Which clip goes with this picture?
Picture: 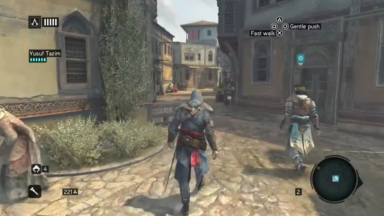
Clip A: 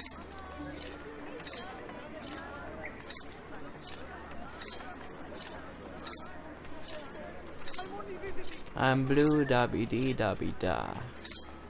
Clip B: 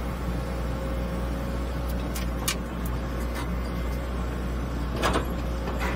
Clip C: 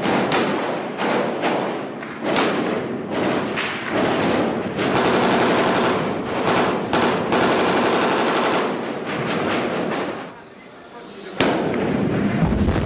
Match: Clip A